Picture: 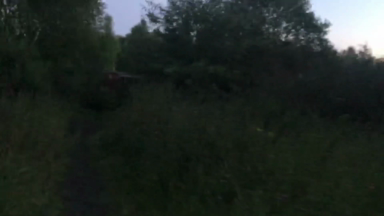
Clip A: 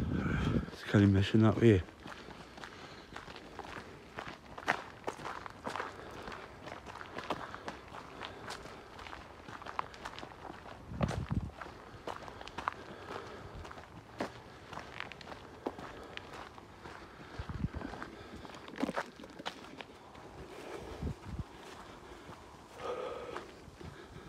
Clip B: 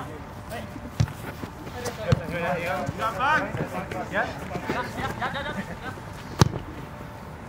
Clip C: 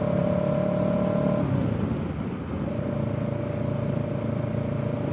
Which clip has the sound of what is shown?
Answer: A